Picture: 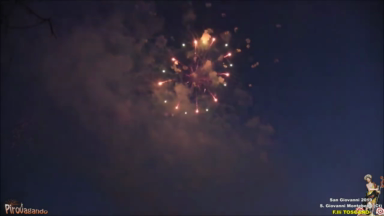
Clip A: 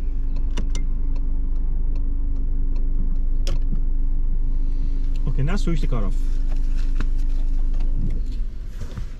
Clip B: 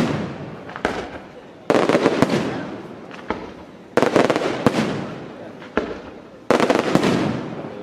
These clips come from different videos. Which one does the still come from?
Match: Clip B